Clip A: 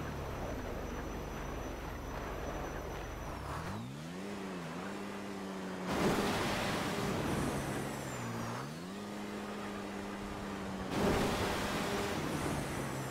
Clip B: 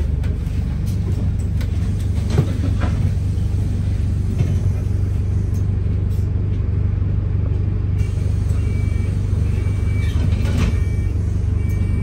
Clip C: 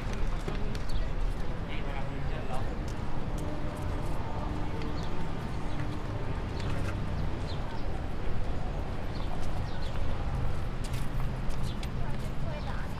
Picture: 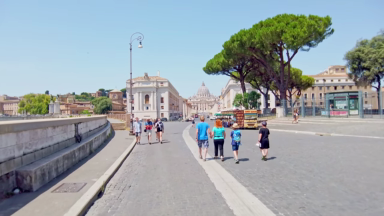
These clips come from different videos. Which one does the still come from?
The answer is C